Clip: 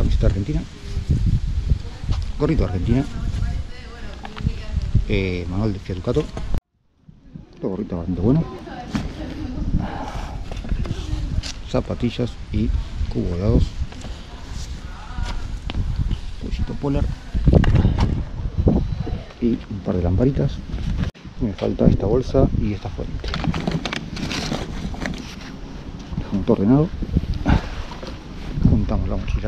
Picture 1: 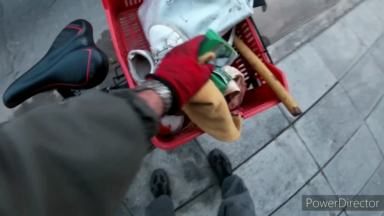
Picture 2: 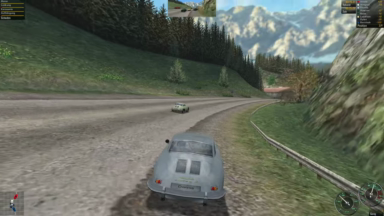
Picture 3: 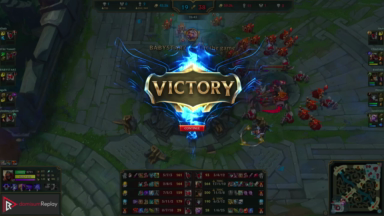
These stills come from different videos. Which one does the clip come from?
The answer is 1